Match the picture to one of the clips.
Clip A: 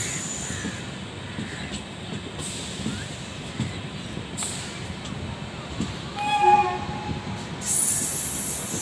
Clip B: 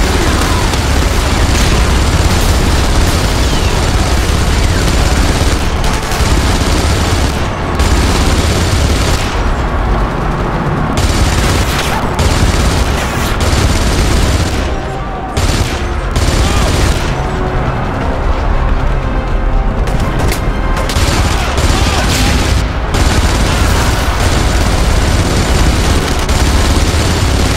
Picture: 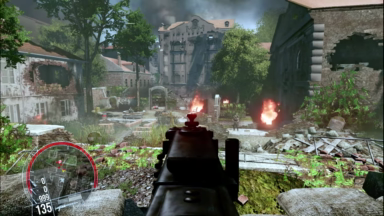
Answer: B